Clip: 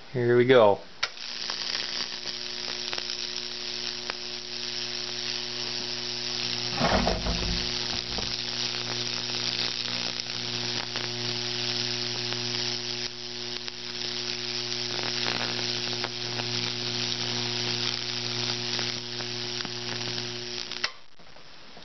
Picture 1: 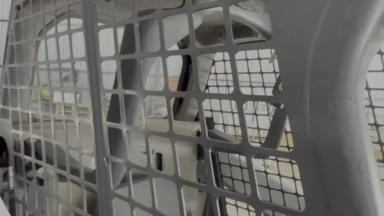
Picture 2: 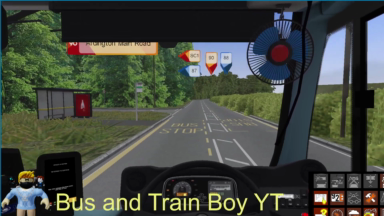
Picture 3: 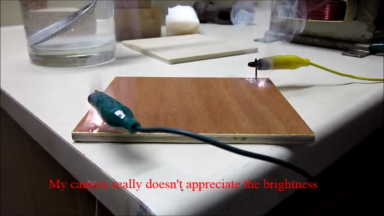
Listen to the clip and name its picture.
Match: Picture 3